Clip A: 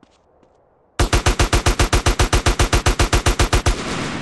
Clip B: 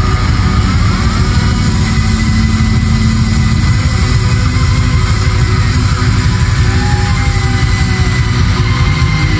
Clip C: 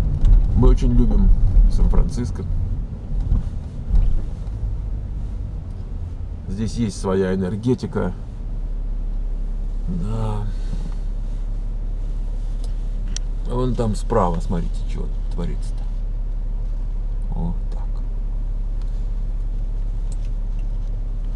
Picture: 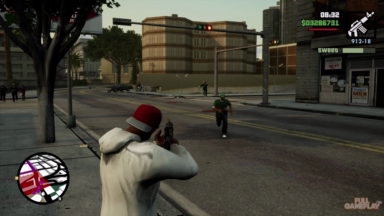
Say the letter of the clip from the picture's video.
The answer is A